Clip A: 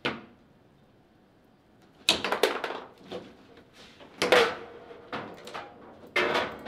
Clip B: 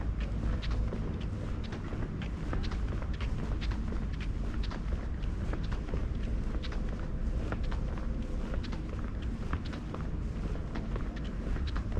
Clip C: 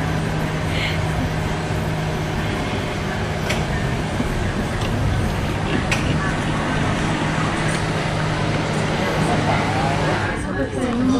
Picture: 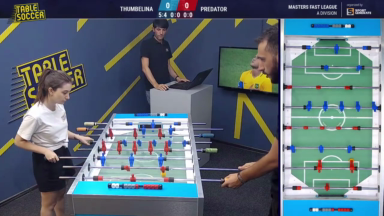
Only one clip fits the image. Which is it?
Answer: A